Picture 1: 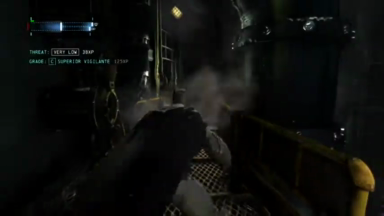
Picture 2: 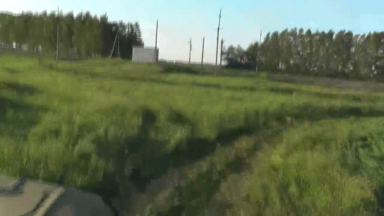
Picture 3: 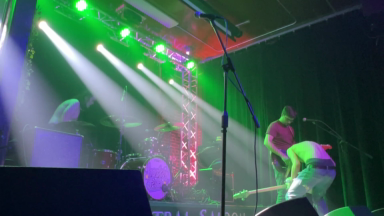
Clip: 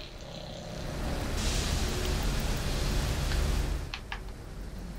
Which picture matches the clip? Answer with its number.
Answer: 1